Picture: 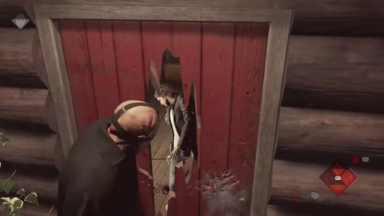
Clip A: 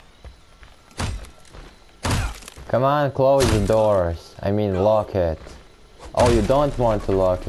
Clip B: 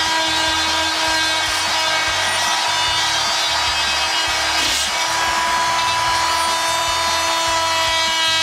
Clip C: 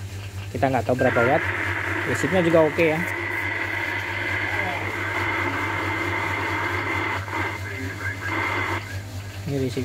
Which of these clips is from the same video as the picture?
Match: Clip A